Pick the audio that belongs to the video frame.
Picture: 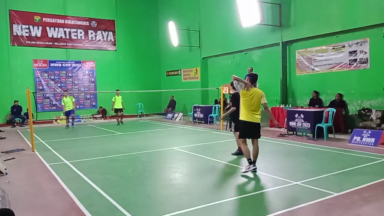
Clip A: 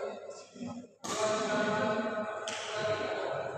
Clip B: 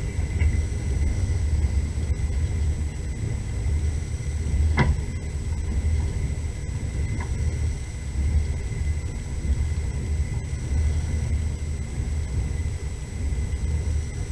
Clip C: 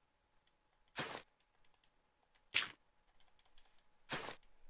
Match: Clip A